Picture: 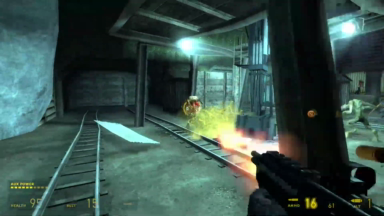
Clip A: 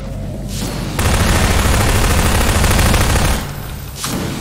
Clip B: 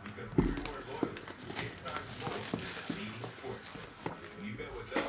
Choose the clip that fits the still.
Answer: A